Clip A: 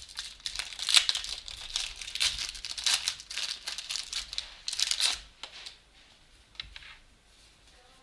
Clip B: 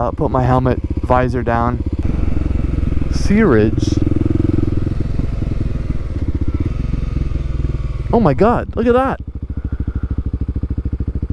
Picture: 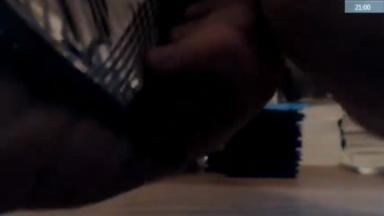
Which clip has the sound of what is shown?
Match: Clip A